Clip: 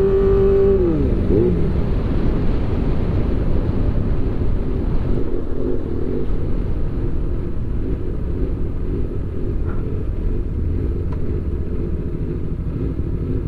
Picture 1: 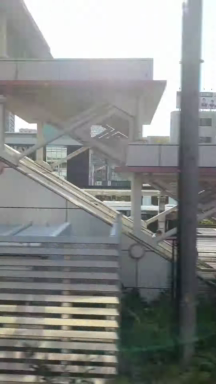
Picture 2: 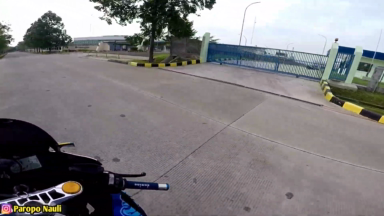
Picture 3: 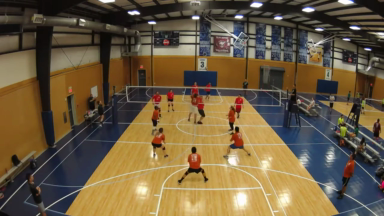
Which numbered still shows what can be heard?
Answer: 2